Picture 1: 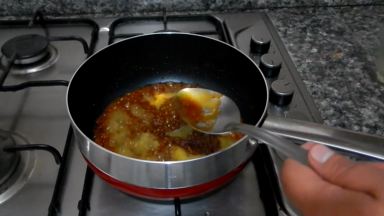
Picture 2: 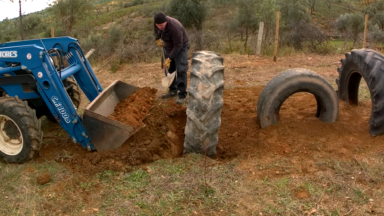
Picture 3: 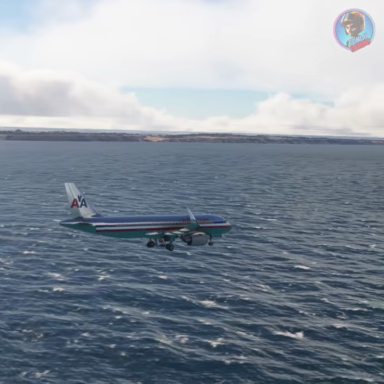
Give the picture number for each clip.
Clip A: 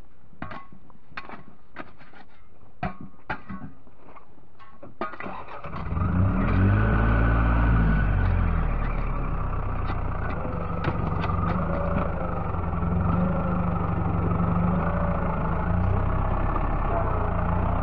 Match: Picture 2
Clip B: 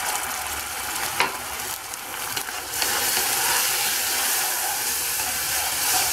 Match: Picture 1